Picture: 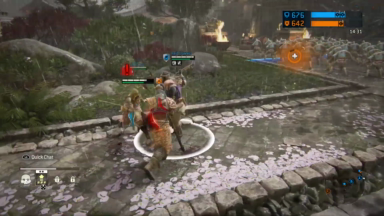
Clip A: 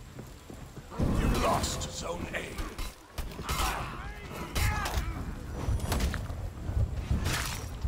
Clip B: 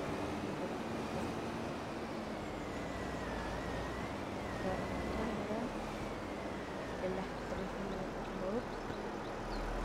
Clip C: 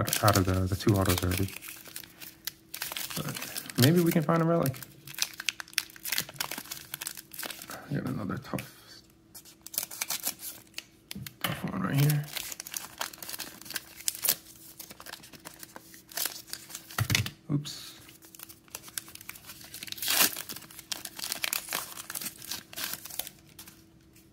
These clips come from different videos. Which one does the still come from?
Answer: A